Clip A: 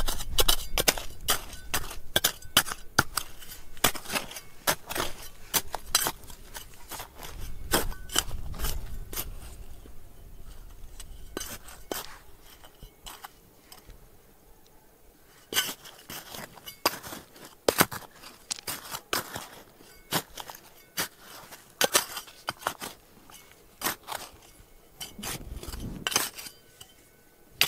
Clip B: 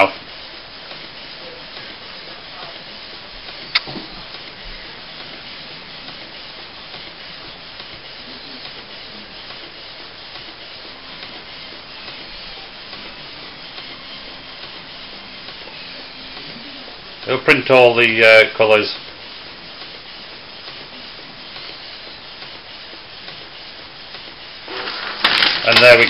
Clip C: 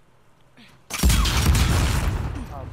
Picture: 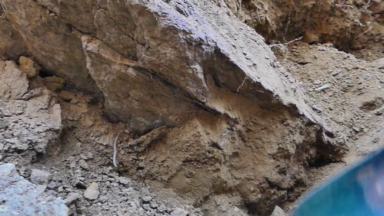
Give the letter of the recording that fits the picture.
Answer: A